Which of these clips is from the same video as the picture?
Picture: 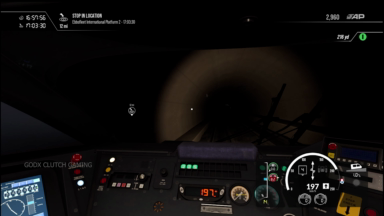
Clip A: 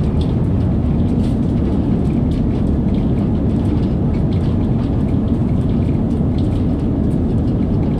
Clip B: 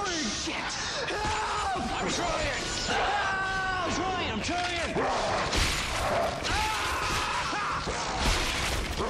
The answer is A